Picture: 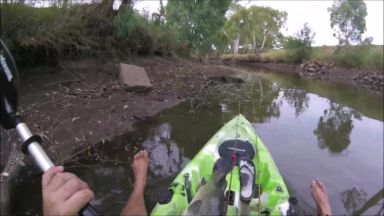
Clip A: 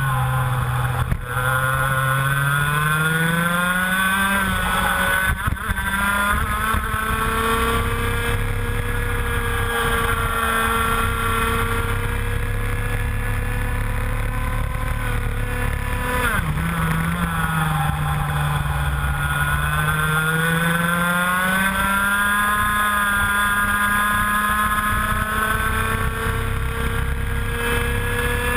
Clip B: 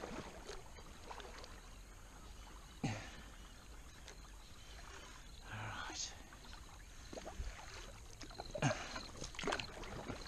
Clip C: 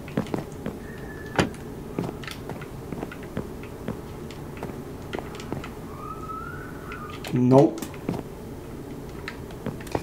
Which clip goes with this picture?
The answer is B